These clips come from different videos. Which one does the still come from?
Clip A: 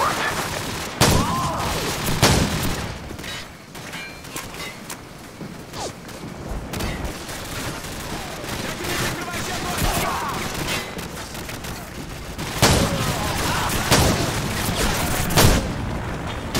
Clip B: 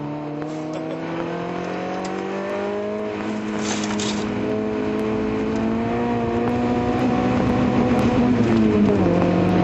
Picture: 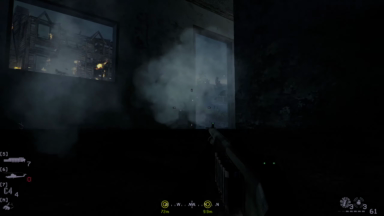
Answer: A